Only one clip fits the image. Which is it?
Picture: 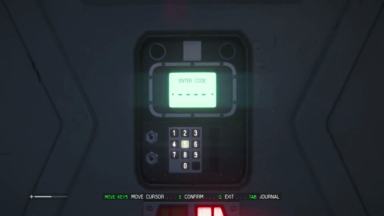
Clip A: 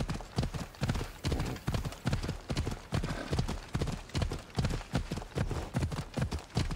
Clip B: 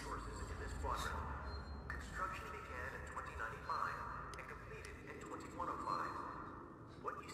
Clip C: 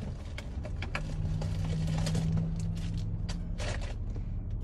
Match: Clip B